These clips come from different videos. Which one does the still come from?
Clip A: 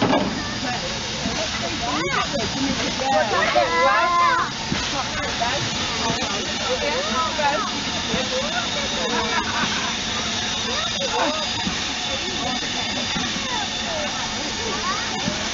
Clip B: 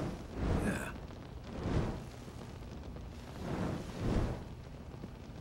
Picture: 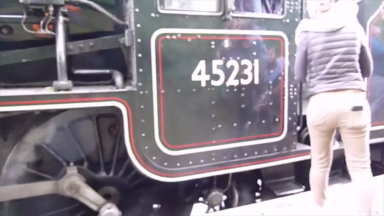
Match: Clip A